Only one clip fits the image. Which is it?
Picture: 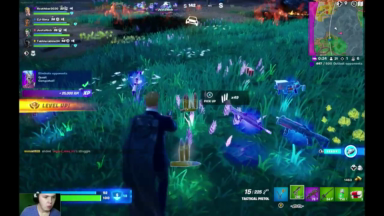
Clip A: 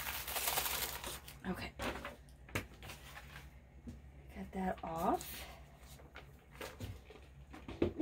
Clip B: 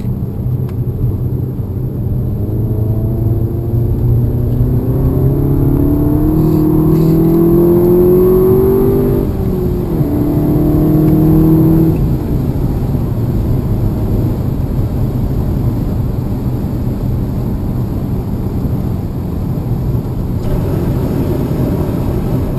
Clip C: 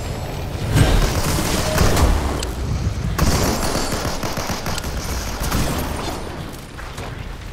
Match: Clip C